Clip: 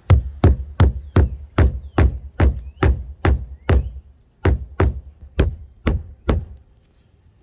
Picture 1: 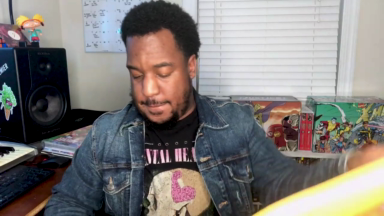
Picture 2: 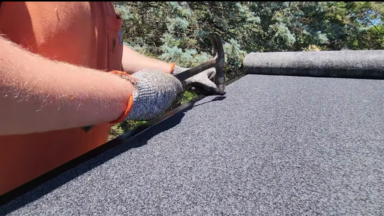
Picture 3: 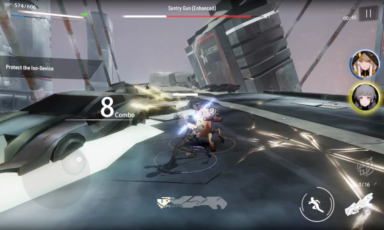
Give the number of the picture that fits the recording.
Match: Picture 2